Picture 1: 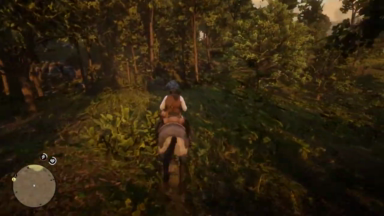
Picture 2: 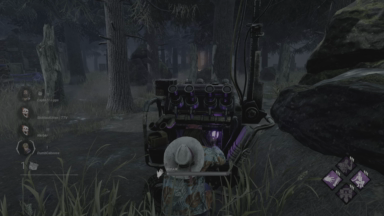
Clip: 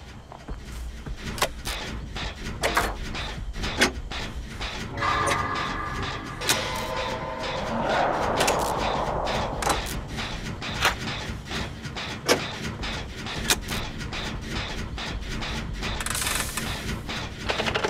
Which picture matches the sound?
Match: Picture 2